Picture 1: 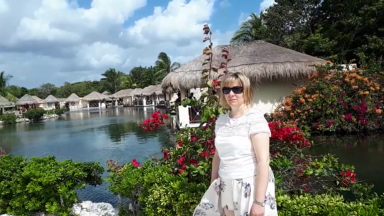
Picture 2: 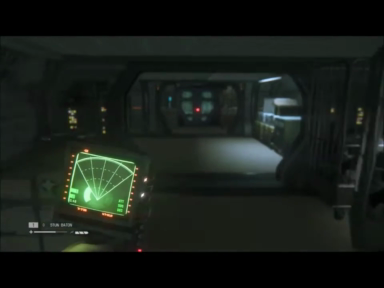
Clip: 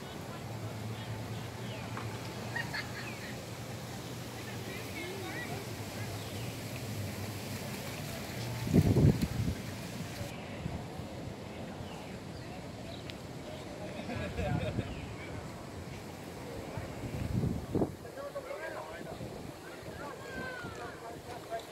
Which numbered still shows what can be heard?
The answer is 1